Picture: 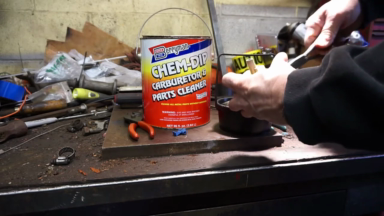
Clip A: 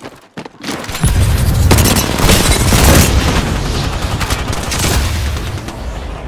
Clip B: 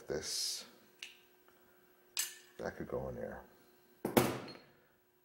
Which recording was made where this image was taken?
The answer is B